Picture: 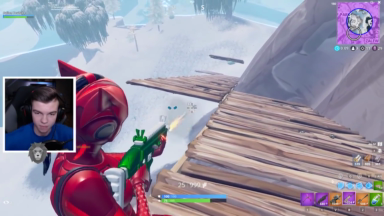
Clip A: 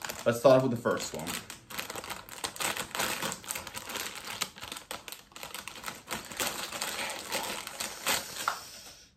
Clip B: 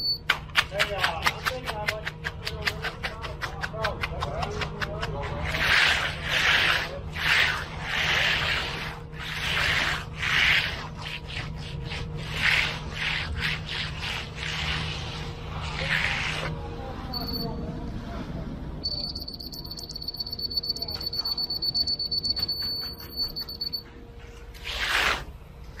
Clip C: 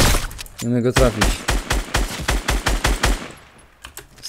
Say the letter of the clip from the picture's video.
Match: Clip C